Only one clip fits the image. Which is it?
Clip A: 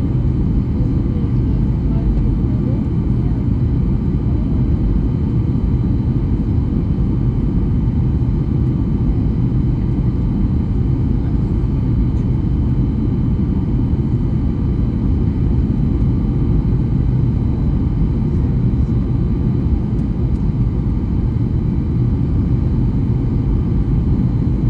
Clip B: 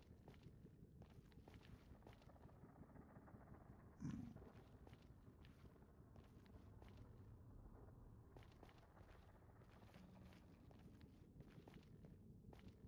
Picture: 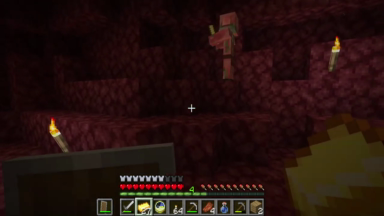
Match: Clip B